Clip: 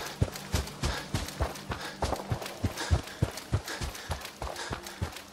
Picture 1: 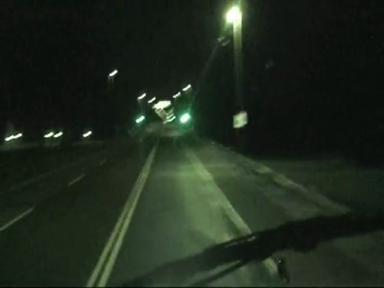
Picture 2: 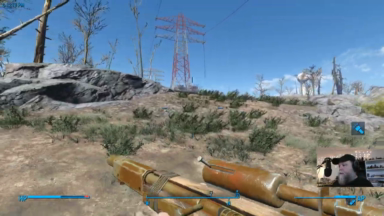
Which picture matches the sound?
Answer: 2